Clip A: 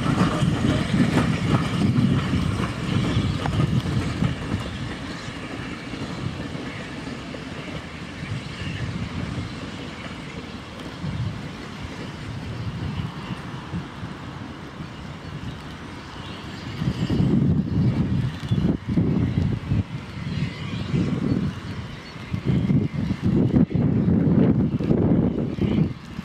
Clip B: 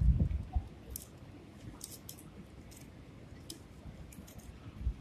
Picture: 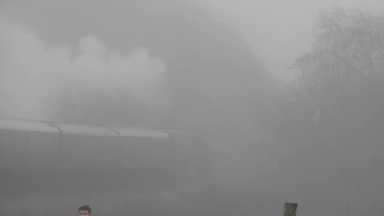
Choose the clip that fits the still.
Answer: A